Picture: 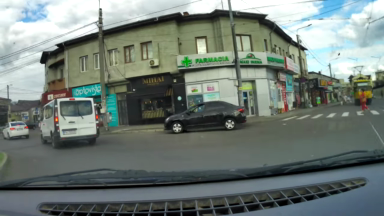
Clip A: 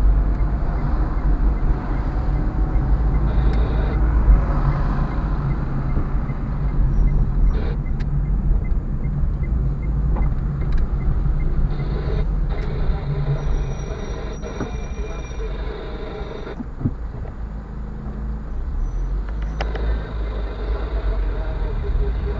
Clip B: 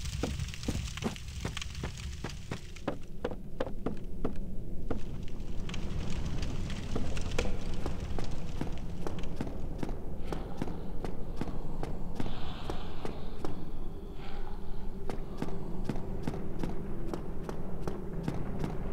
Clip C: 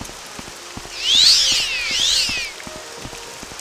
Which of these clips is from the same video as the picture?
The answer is A